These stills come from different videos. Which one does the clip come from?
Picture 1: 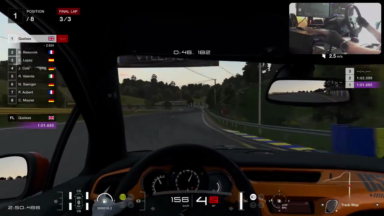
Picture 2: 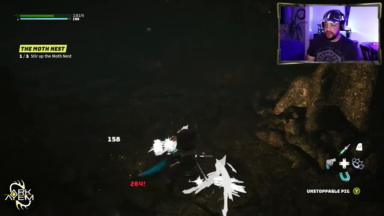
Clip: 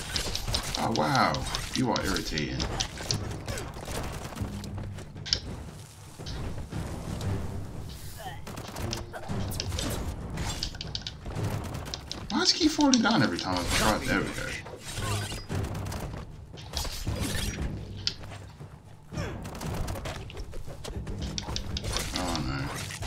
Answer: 2